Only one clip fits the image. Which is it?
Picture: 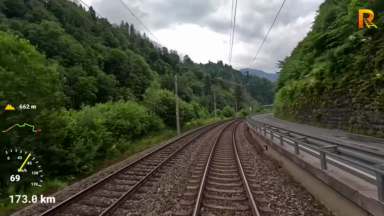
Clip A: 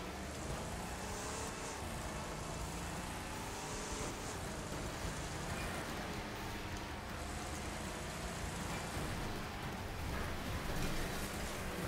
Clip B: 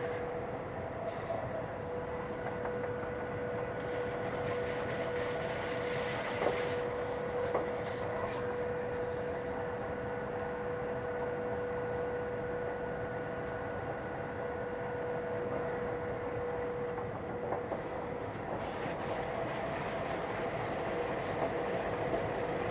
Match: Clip B